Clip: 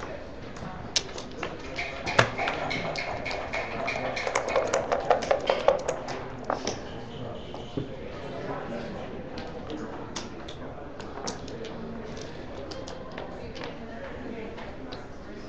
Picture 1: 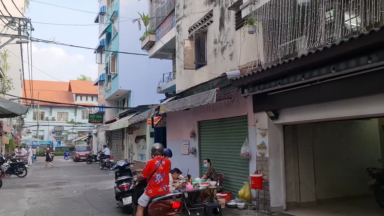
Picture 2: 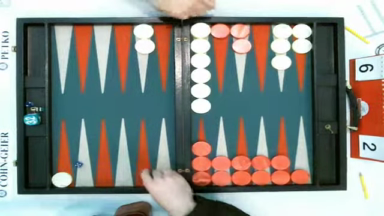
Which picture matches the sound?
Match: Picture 2